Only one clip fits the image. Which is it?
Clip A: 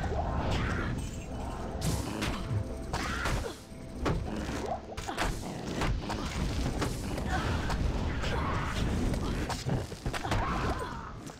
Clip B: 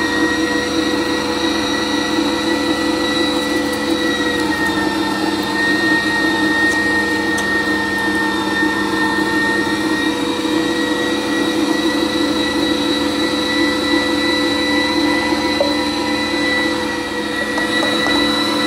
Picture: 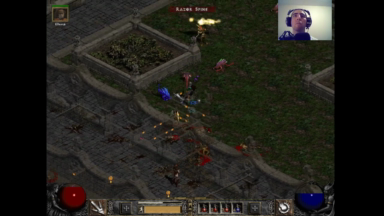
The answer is A